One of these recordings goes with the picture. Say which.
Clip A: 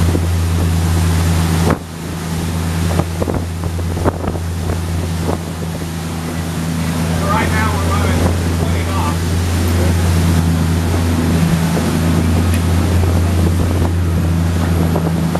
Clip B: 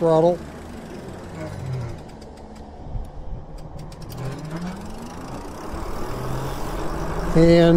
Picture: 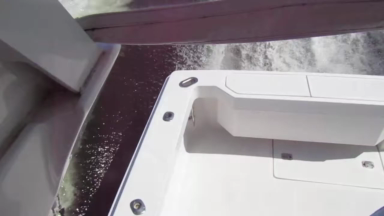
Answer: A